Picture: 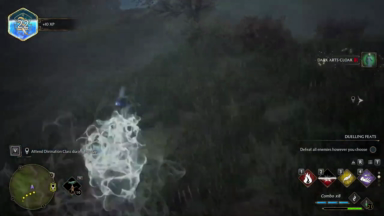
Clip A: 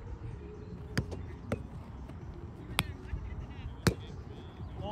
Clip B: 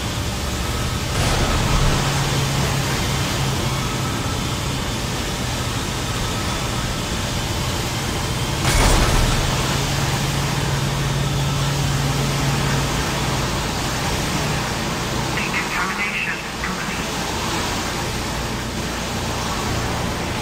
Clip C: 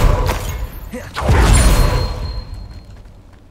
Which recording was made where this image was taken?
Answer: C